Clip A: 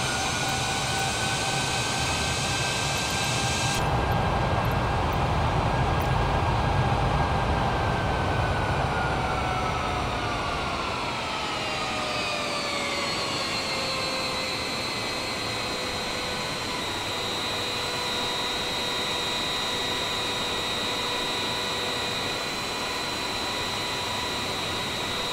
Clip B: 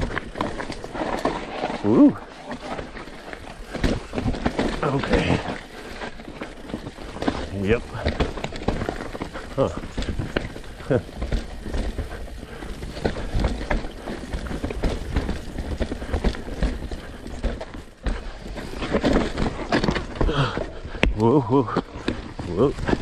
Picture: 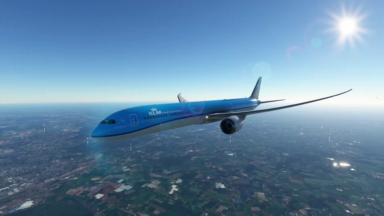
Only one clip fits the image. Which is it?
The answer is A